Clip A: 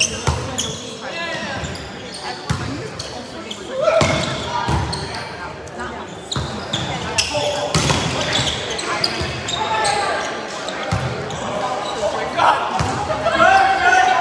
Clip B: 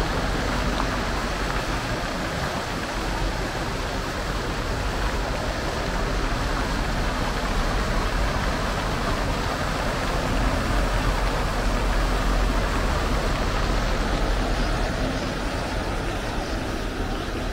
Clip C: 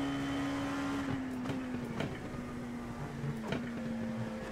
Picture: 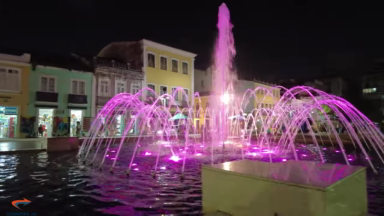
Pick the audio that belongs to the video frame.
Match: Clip B